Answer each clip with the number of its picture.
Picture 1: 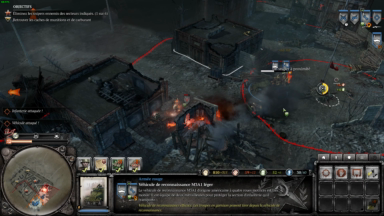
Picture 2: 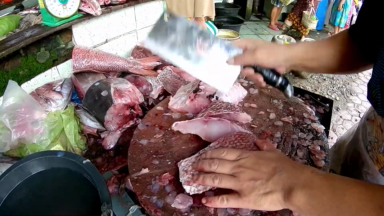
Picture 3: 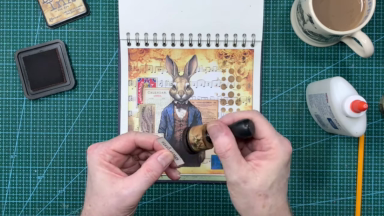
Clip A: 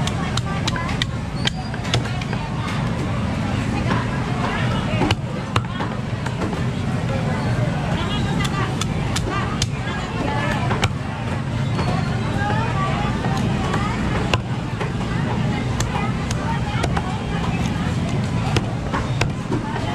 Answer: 2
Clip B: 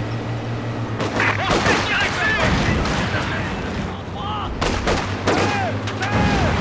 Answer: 1